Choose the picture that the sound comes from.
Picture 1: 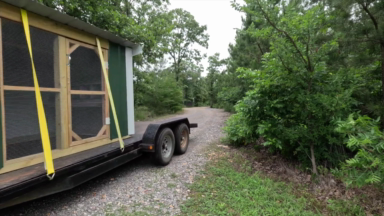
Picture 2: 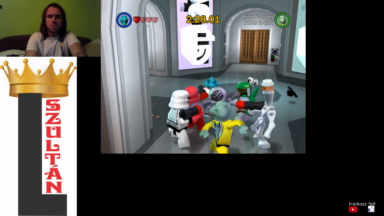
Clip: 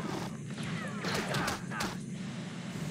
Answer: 2